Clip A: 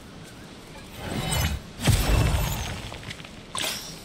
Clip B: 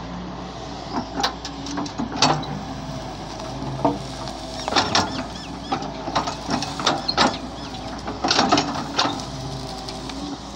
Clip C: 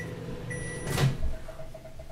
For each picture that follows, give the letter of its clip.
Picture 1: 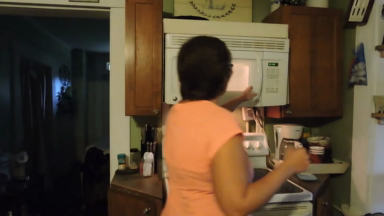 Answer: C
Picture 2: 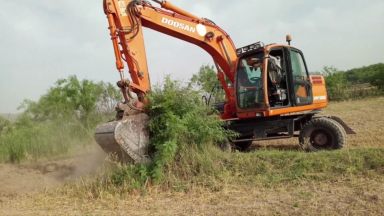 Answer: B